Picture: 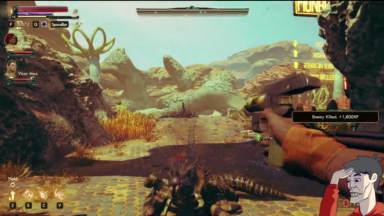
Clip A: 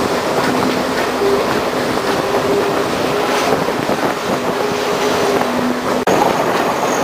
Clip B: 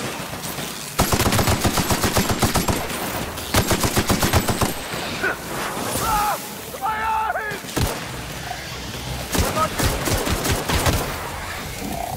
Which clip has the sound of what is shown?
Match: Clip B